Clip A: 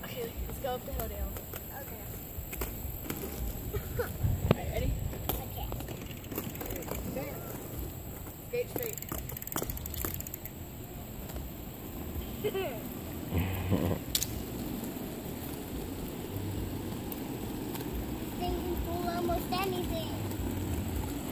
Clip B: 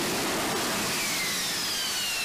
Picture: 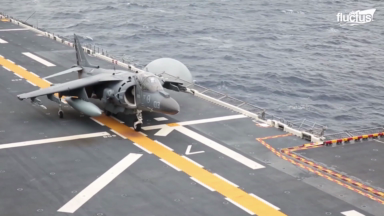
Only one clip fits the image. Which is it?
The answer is B